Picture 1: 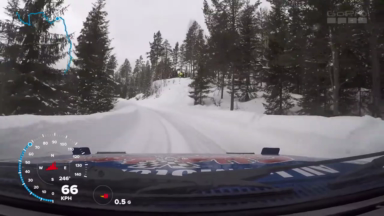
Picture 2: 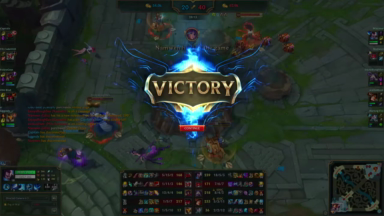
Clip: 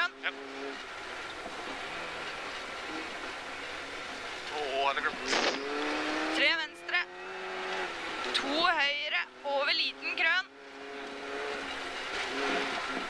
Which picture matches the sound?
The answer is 1